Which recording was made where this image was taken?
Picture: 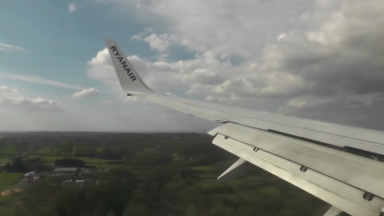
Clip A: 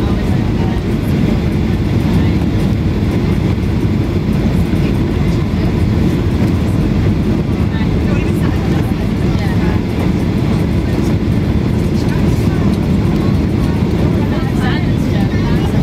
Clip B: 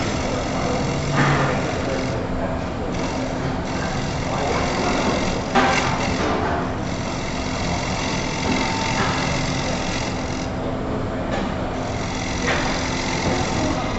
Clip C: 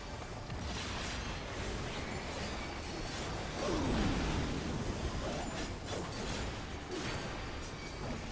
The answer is A